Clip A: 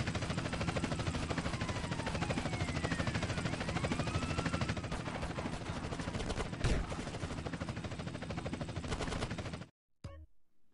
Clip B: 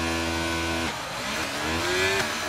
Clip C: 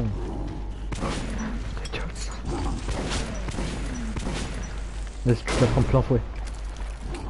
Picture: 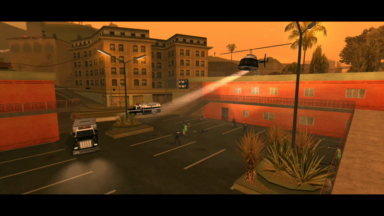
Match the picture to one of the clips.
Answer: A